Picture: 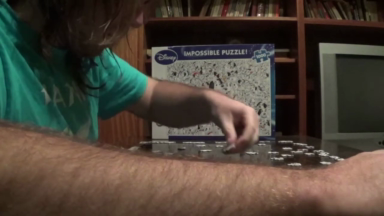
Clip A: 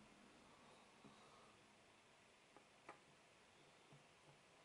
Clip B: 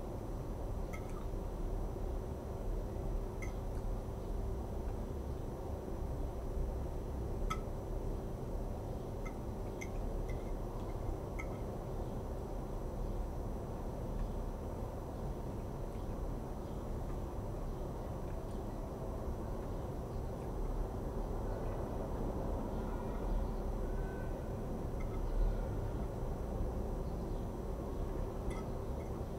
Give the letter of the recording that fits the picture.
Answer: A